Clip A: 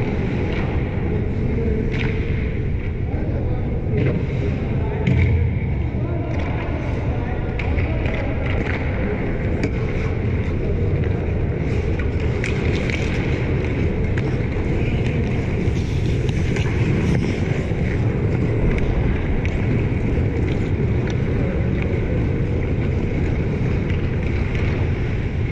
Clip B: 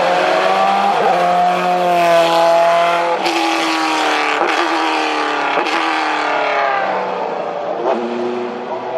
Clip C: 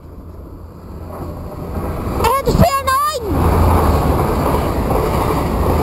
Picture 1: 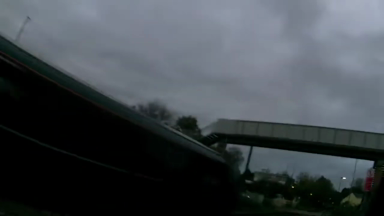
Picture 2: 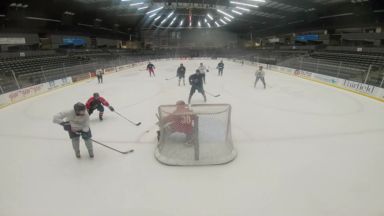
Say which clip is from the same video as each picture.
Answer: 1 C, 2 A